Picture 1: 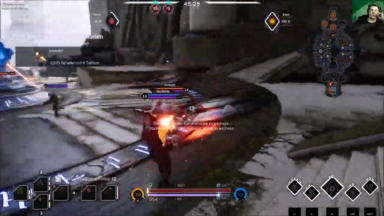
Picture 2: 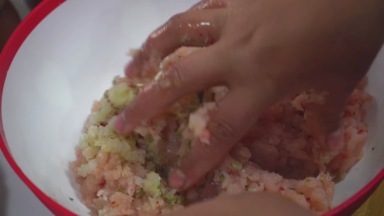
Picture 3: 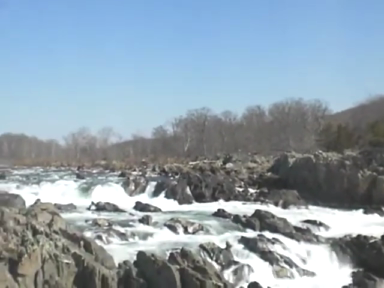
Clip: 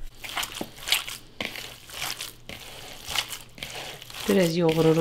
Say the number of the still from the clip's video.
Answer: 2